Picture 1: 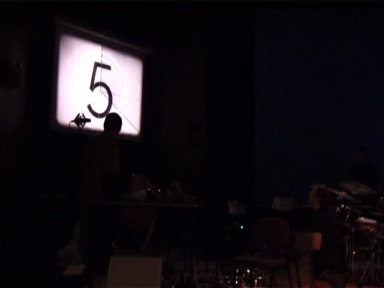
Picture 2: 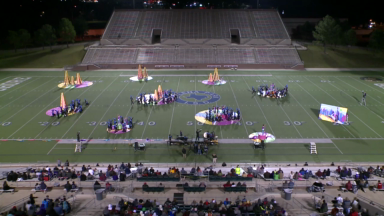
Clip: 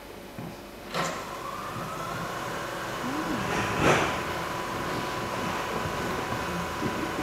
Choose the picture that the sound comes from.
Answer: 1